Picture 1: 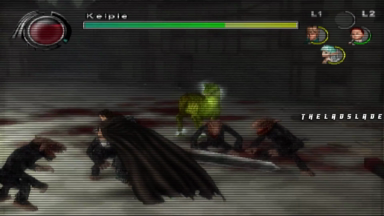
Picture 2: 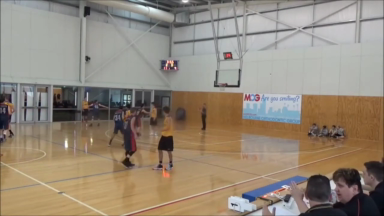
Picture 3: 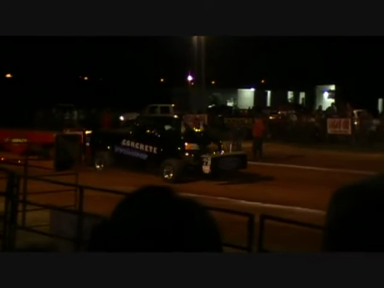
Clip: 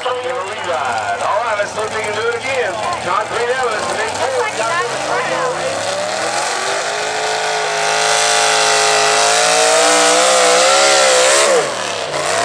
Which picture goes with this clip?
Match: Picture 3